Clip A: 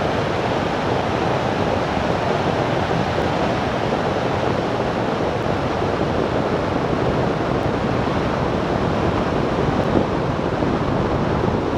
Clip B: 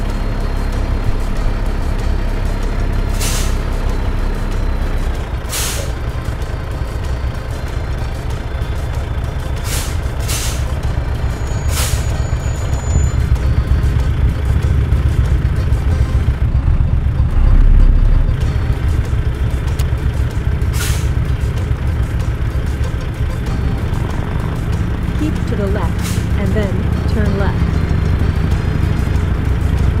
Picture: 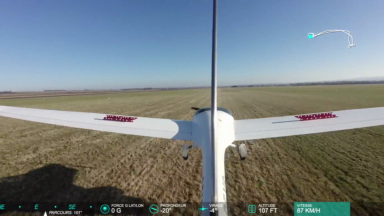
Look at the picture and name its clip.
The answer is A